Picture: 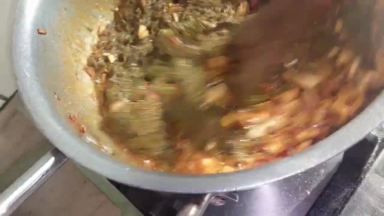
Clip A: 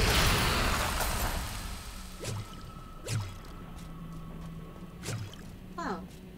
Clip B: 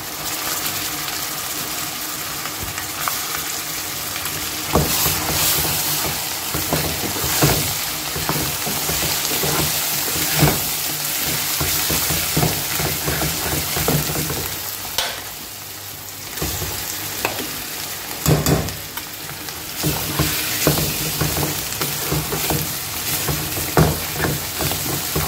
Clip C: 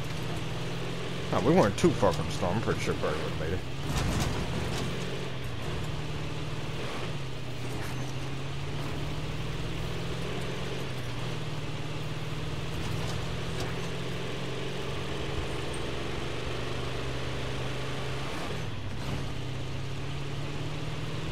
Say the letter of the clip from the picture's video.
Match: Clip B